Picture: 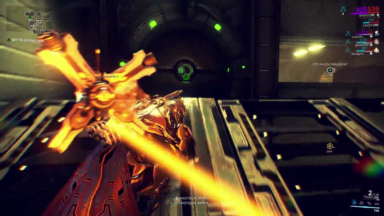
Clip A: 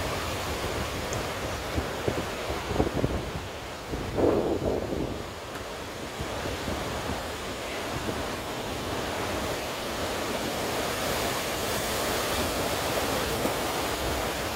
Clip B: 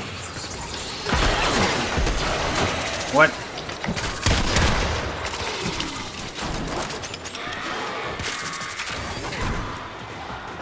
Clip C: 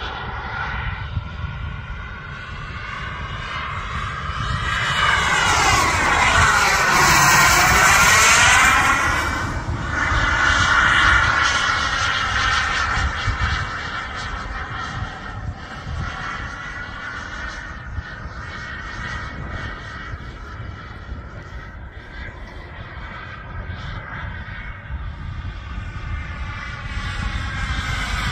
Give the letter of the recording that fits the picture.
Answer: B